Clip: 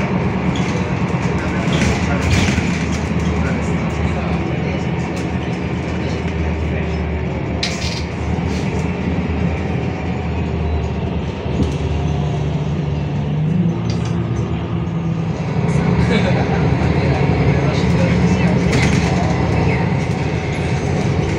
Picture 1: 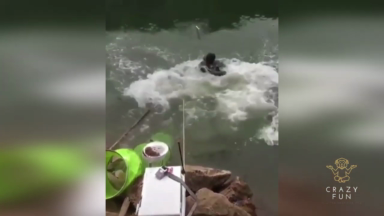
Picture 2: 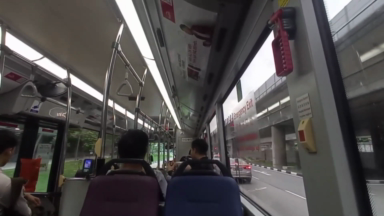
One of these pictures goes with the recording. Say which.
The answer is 2